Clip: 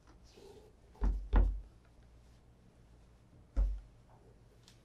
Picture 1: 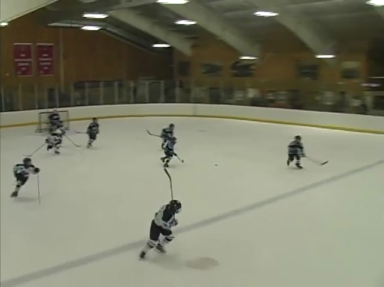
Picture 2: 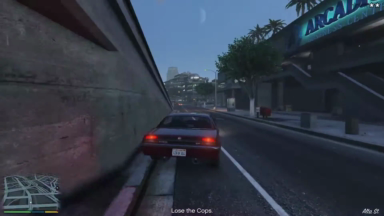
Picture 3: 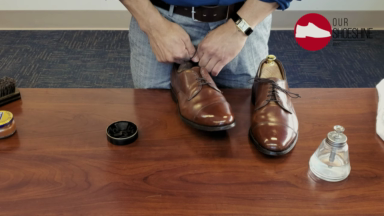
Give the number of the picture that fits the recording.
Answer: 3